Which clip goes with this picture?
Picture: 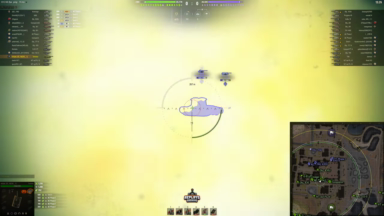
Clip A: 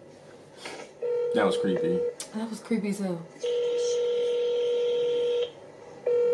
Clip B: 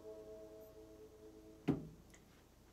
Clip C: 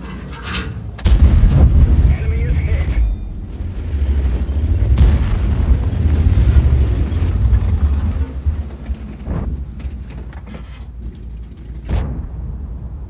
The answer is C